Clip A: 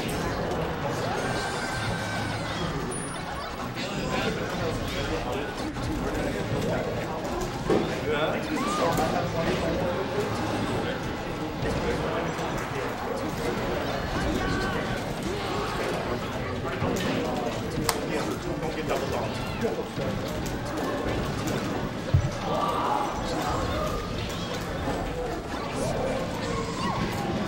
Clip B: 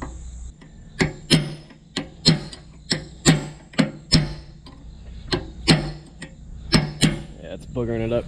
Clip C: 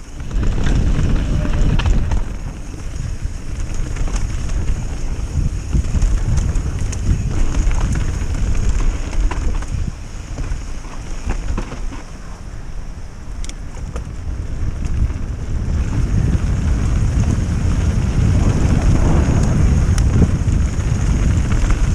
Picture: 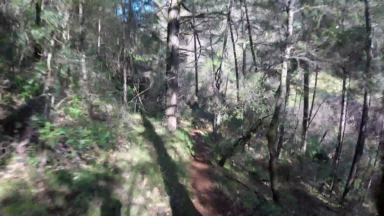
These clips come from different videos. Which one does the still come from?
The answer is C